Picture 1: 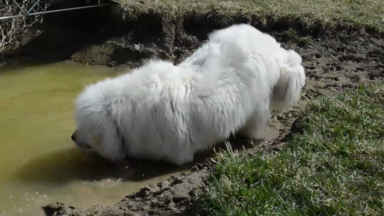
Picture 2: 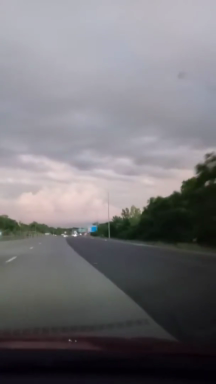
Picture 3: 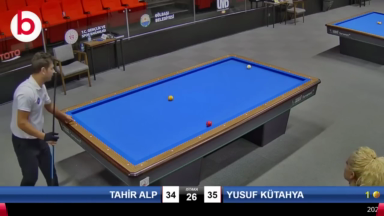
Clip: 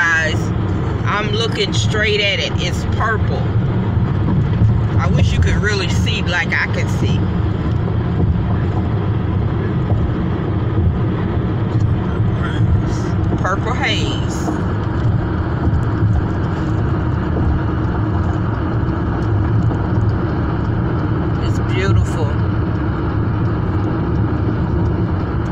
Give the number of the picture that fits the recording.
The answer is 2